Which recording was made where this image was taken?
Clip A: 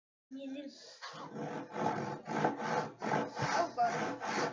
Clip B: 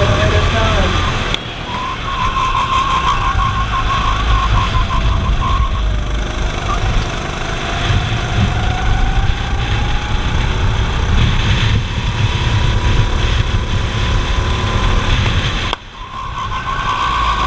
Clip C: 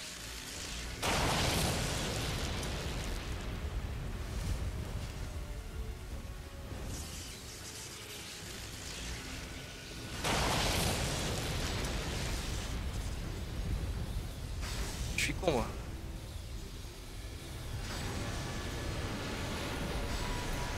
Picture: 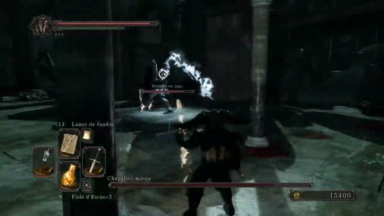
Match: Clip C